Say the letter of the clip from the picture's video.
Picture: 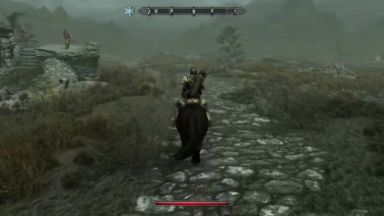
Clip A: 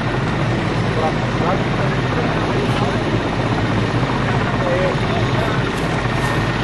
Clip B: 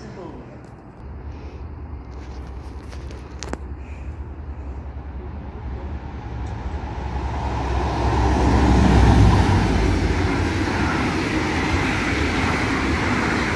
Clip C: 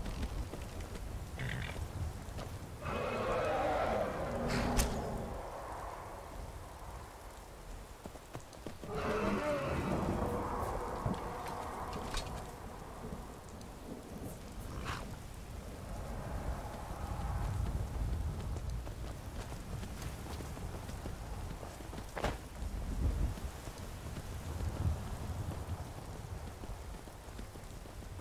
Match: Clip C